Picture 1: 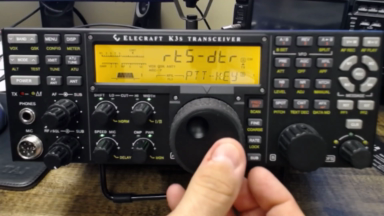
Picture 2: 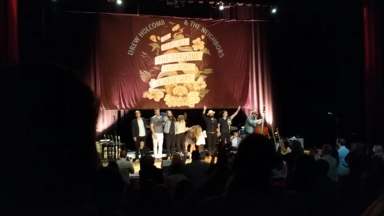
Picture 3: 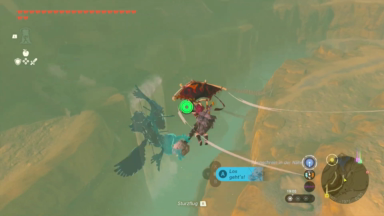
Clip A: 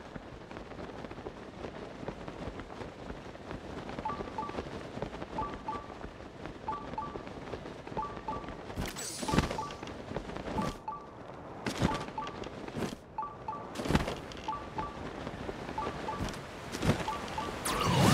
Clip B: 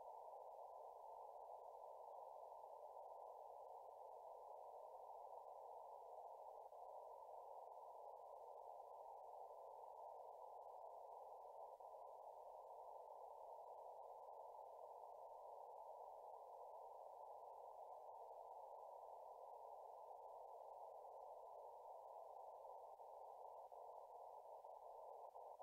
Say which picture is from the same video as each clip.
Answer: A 3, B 1